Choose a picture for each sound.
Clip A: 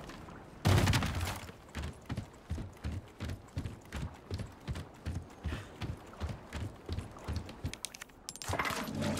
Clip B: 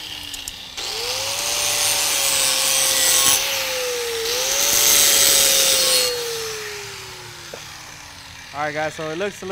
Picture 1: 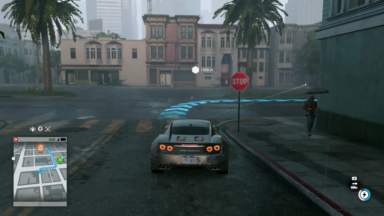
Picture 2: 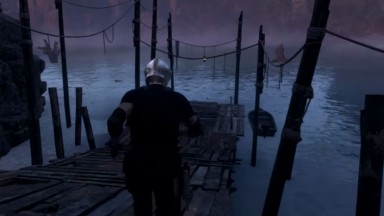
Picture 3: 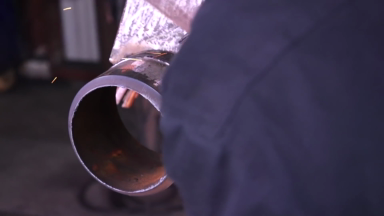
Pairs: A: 2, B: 3